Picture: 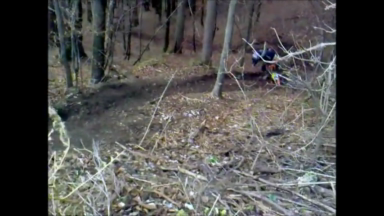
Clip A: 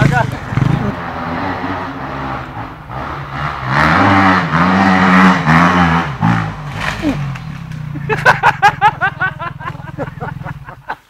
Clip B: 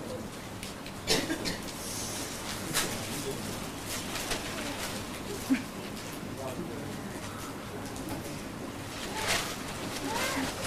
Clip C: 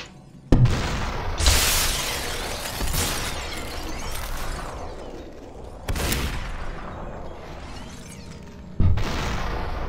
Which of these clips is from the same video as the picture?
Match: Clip A